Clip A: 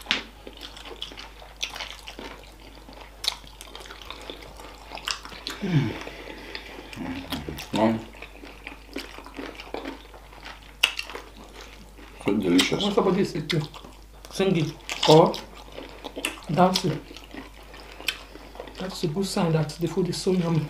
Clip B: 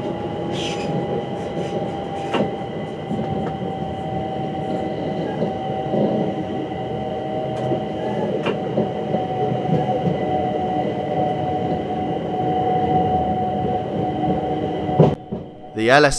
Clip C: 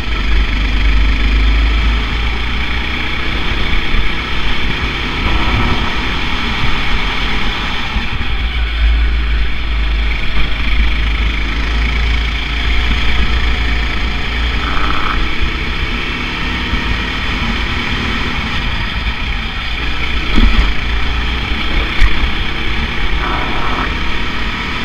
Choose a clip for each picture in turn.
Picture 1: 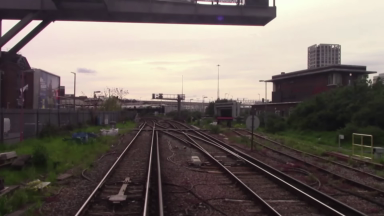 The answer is B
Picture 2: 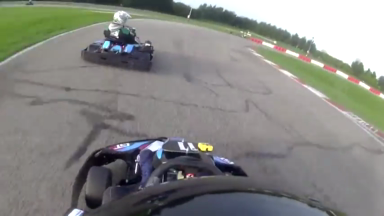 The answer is C